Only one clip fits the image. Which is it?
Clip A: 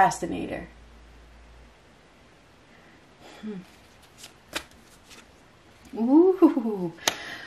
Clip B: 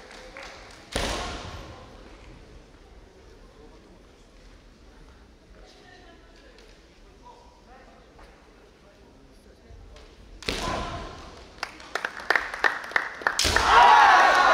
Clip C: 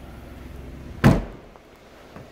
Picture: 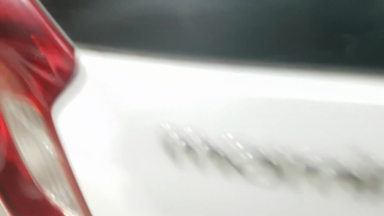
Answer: C